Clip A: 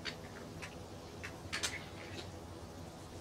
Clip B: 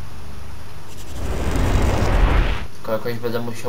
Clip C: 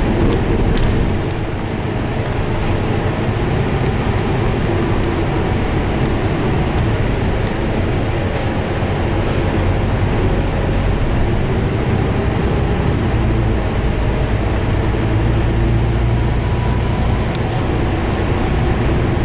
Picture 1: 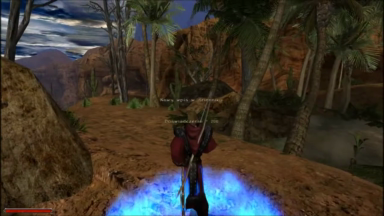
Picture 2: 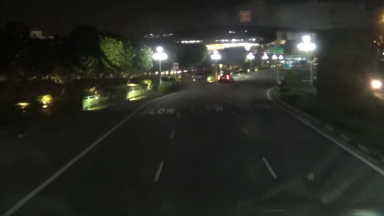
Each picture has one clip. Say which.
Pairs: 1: B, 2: C